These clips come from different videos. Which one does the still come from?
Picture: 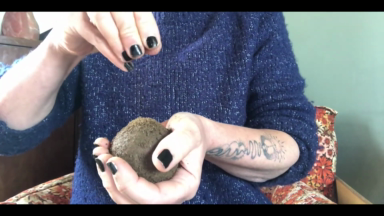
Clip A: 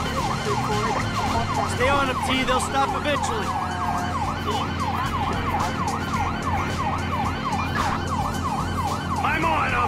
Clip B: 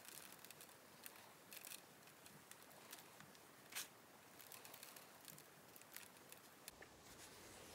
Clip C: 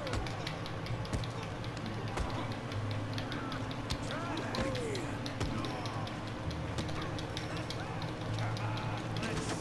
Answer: B